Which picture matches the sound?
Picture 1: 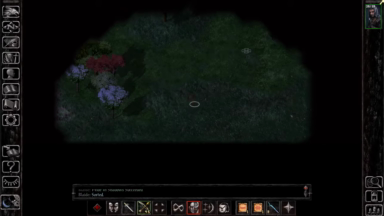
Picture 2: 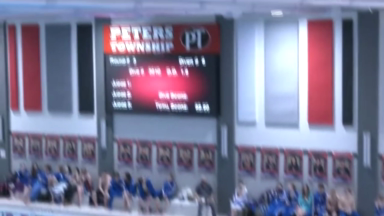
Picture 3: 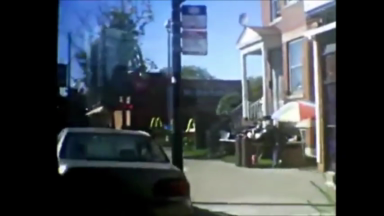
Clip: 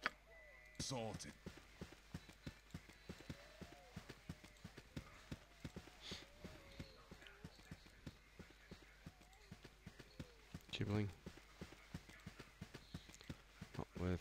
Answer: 1